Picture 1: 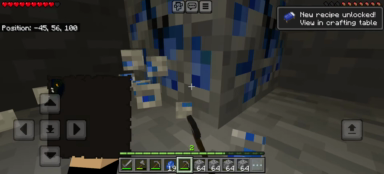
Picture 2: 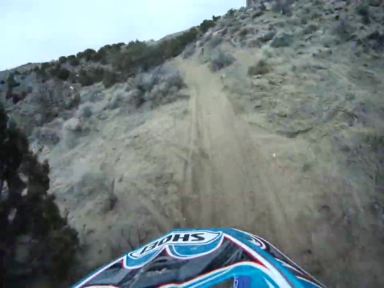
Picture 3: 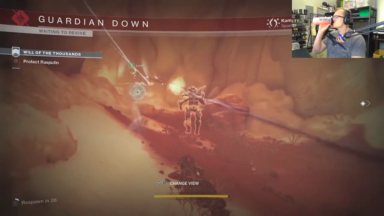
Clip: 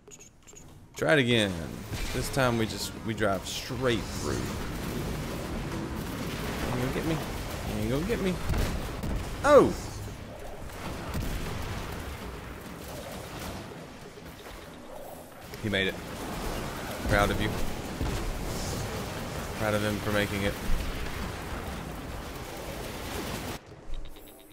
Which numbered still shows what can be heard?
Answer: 3